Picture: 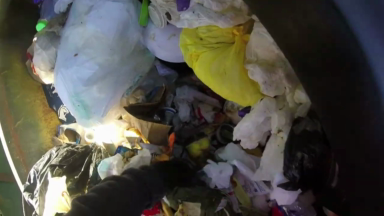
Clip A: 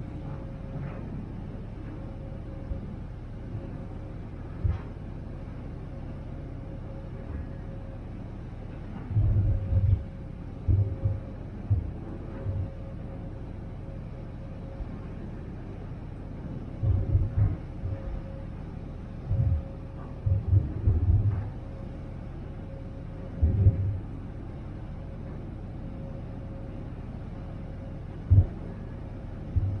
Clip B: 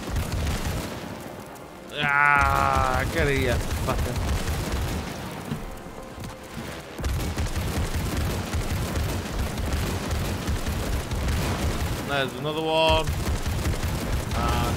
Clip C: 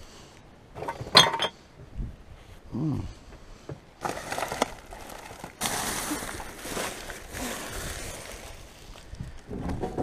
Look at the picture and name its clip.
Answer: C